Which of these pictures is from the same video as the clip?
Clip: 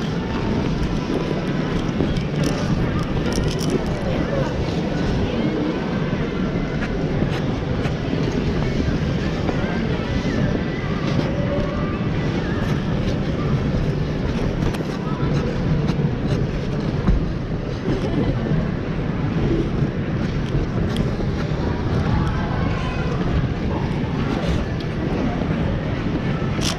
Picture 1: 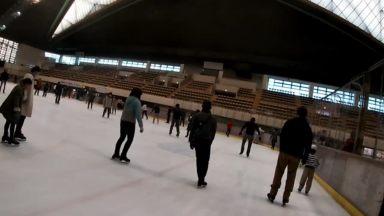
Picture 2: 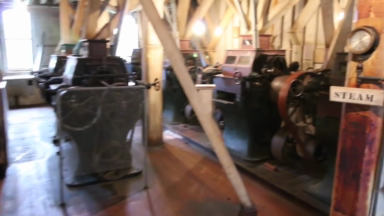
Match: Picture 1